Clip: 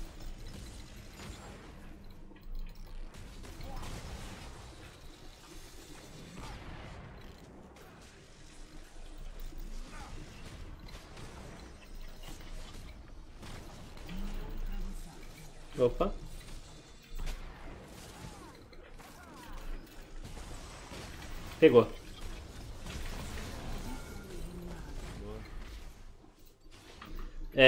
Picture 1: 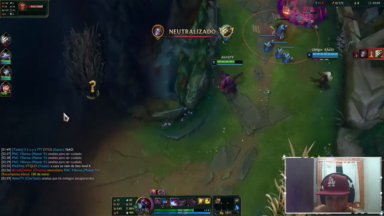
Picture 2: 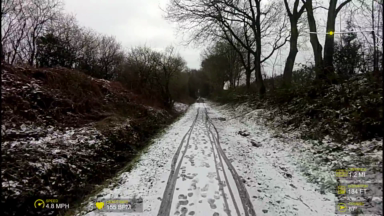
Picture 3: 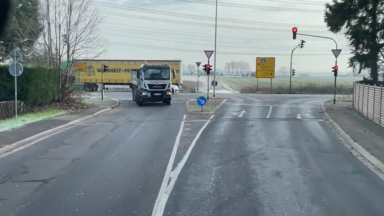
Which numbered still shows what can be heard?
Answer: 1